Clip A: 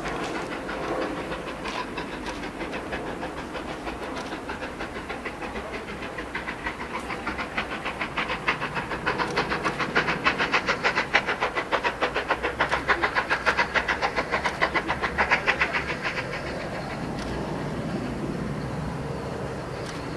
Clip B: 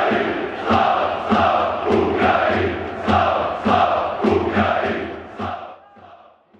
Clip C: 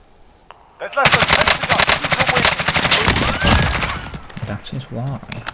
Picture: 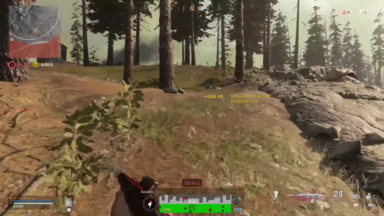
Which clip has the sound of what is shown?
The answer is C